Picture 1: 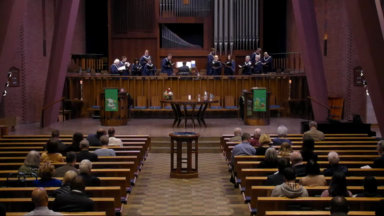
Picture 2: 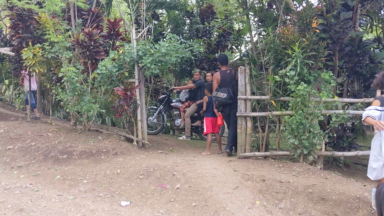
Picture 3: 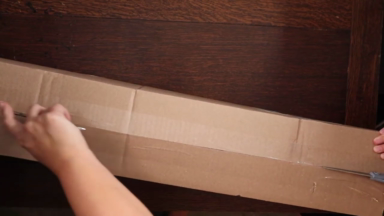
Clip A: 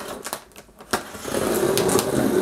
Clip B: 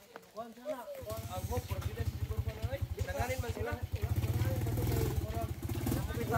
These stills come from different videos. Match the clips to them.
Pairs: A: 3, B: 2